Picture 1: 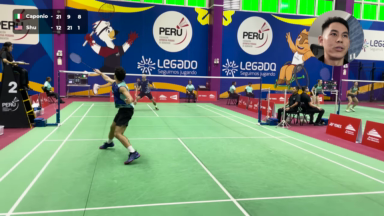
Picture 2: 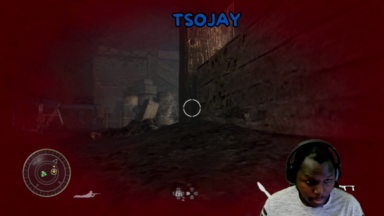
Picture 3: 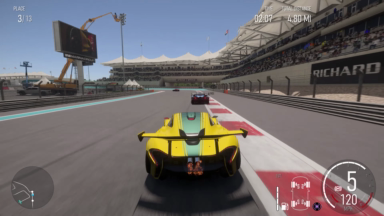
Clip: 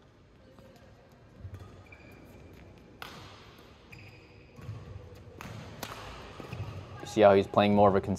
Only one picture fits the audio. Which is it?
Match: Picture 1